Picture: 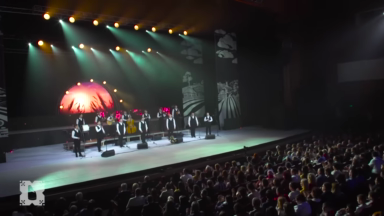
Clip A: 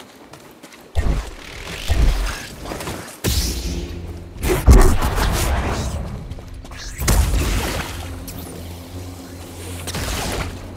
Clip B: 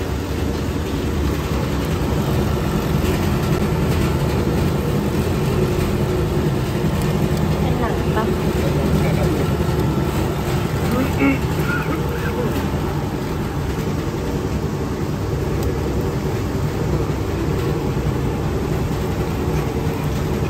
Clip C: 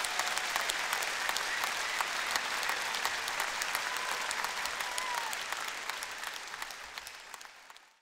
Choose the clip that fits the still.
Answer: C